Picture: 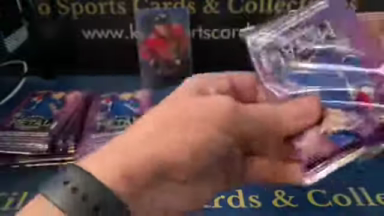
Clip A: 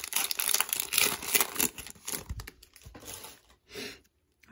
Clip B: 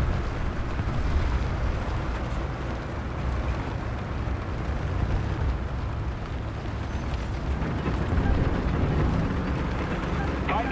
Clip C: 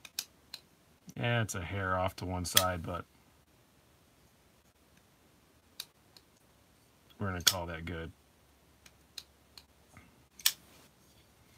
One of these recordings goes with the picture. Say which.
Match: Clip A